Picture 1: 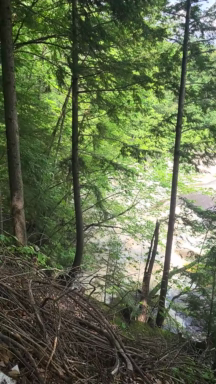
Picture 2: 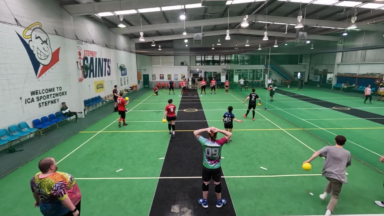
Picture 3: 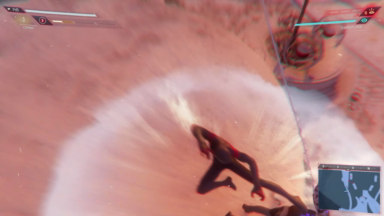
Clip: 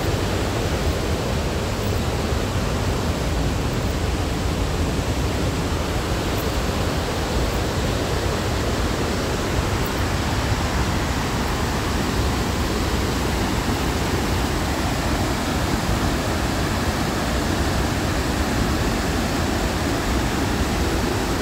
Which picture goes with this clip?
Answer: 1